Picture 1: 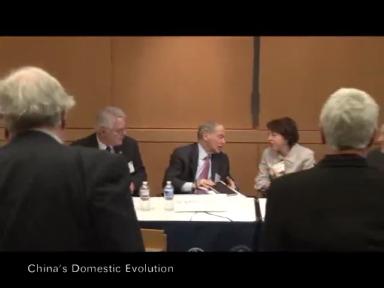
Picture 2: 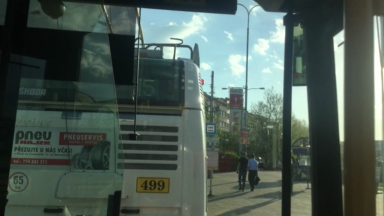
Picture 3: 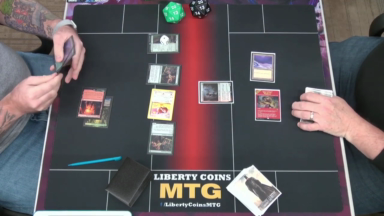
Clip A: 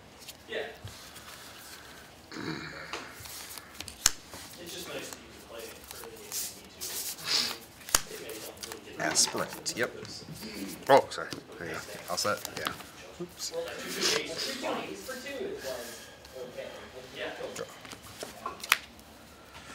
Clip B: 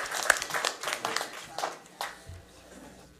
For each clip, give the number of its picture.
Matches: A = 3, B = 1